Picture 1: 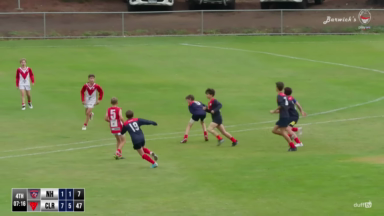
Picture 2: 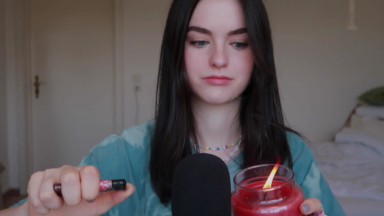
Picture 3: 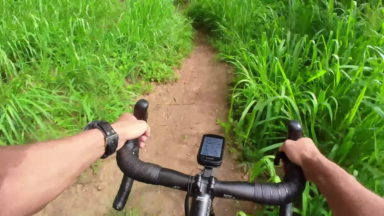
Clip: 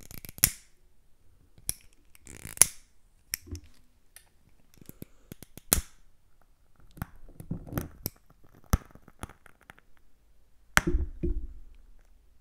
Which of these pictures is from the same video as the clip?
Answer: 2